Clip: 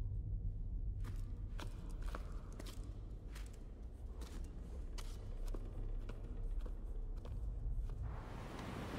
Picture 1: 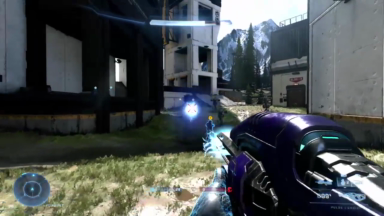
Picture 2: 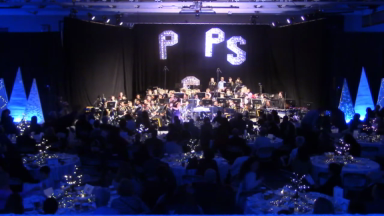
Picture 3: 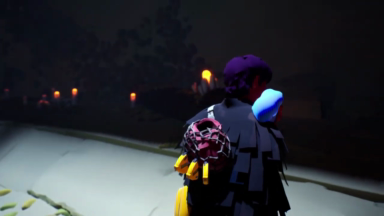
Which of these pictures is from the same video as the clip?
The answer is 3